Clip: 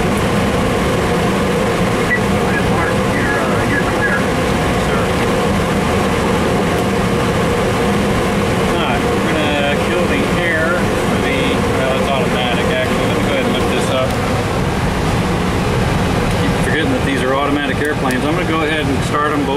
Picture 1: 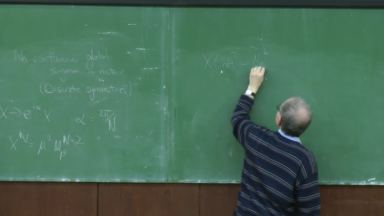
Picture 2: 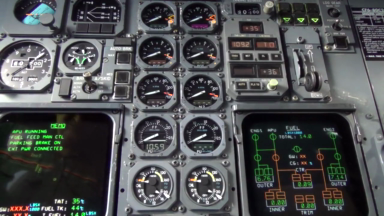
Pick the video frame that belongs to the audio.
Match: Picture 2